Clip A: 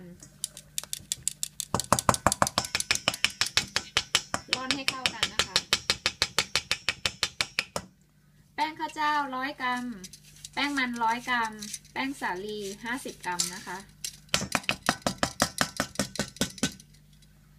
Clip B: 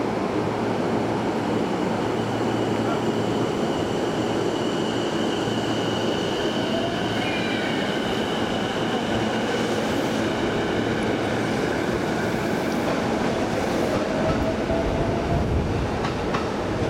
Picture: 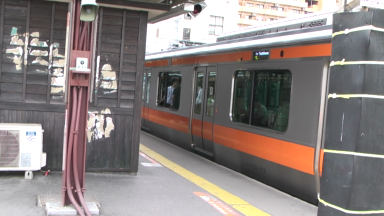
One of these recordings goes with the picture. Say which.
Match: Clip B